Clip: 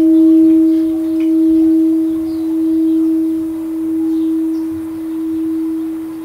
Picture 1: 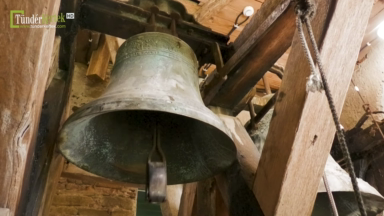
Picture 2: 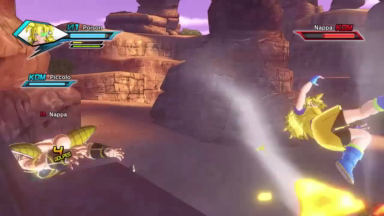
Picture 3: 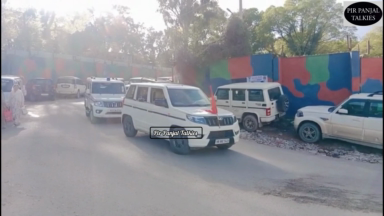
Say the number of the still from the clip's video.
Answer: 1